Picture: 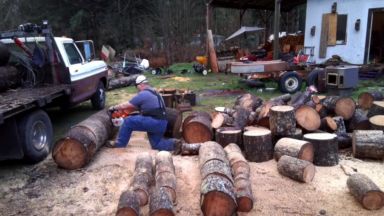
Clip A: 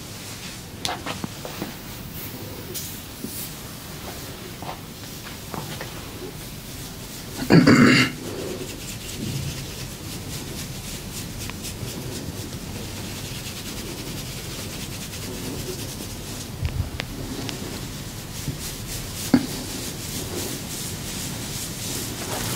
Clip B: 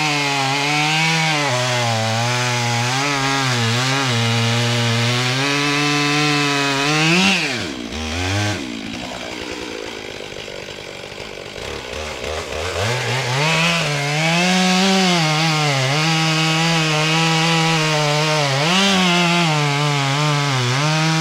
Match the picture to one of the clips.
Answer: B